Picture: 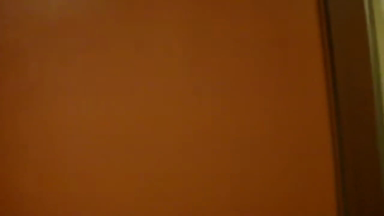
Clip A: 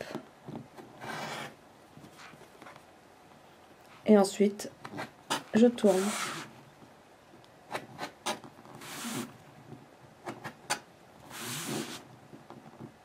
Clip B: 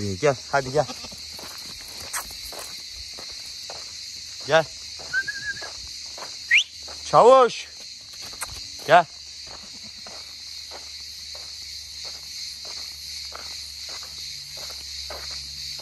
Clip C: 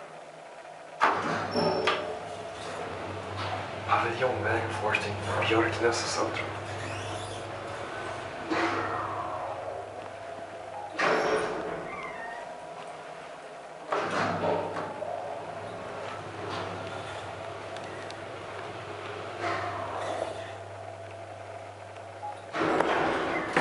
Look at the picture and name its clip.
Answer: C